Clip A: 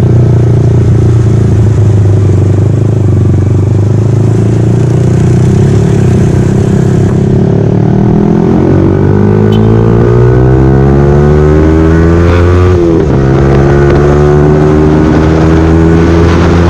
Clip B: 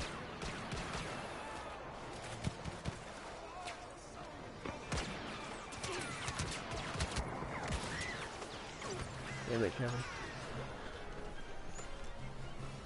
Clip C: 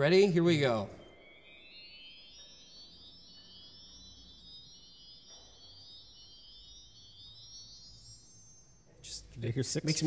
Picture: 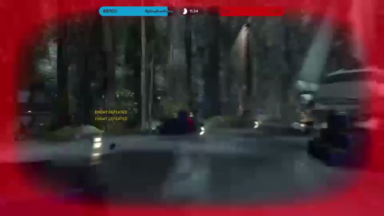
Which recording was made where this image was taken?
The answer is B